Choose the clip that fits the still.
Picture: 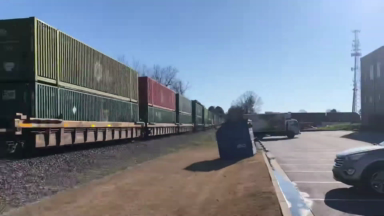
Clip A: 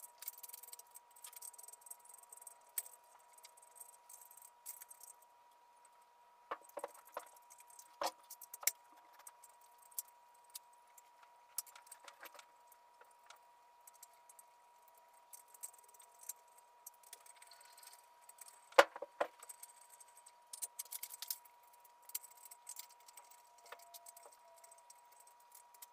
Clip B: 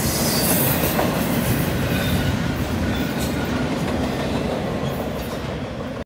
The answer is B